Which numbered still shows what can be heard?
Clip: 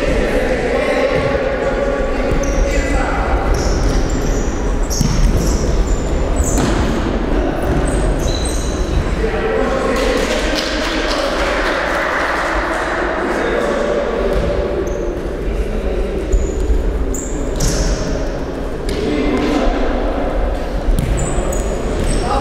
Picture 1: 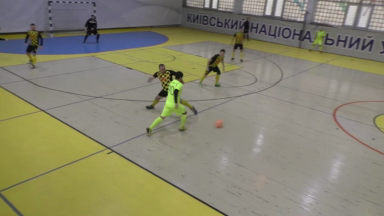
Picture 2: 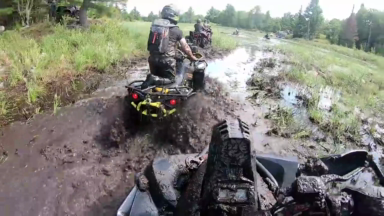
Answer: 1